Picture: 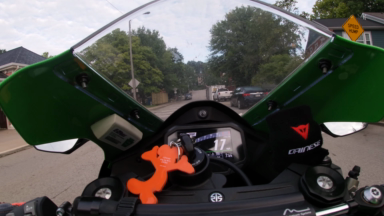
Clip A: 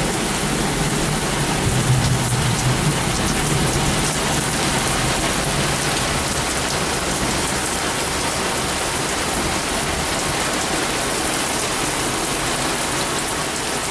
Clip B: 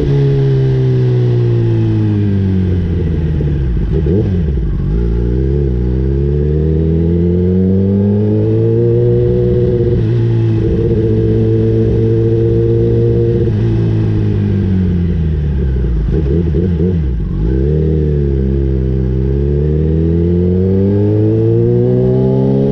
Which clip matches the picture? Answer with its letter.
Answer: B